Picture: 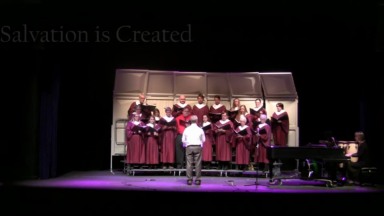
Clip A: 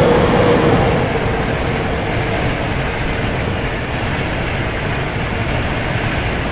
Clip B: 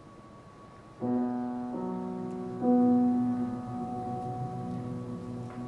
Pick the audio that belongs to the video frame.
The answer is B